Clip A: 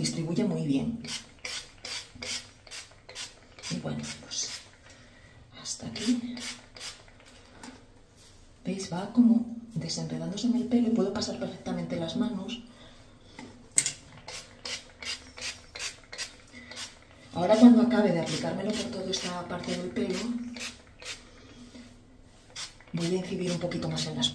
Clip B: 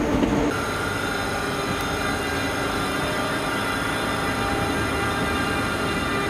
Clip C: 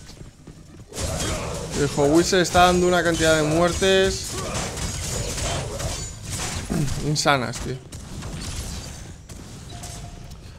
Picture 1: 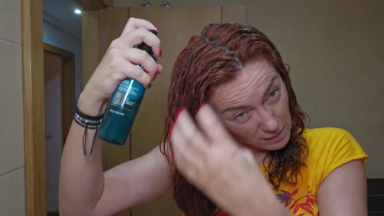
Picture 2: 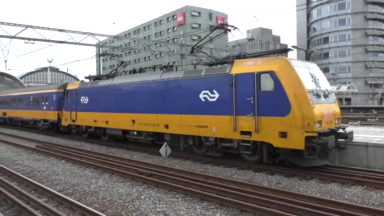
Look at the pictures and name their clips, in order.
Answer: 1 A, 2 B